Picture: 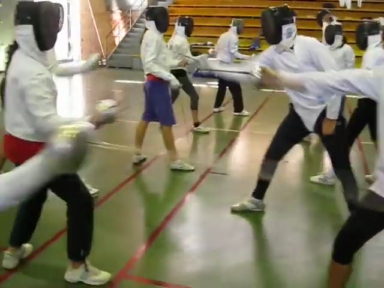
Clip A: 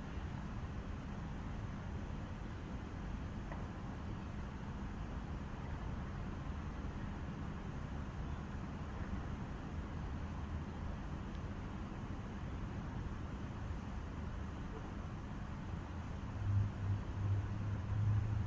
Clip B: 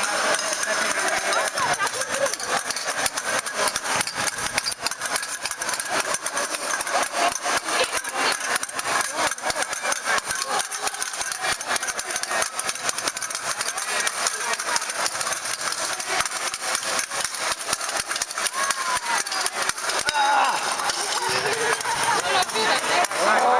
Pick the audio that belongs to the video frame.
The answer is B